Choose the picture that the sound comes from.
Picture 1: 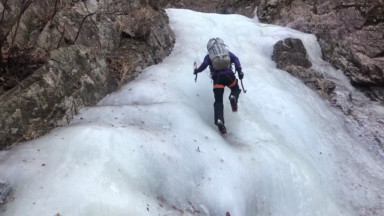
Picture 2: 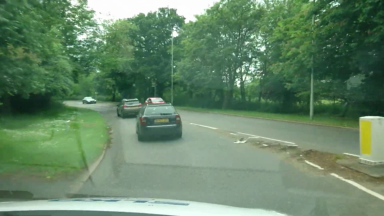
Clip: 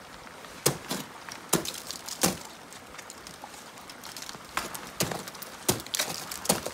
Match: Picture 1